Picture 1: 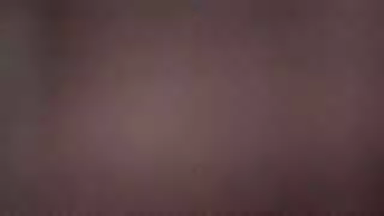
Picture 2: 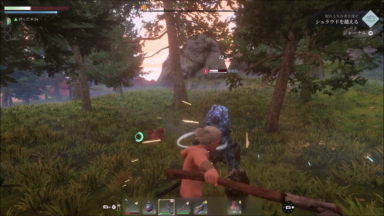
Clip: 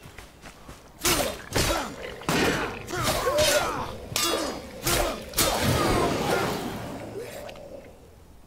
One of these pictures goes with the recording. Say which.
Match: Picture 2